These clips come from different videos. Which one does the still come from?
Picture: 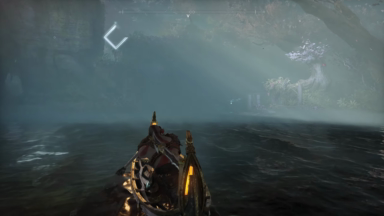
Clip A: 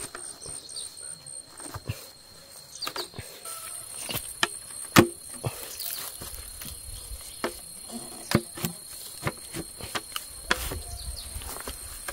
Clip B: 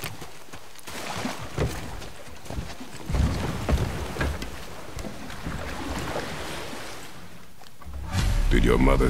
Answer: B